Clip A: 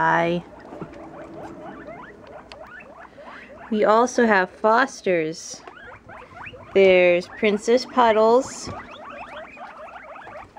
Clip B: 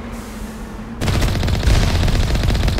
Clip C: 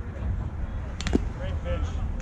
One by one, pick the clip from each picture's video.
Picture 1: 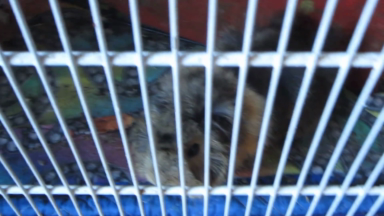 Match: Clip A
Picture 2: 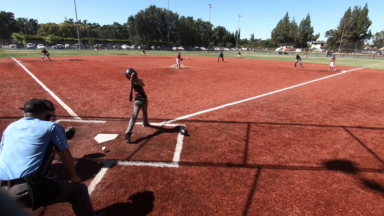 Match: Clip C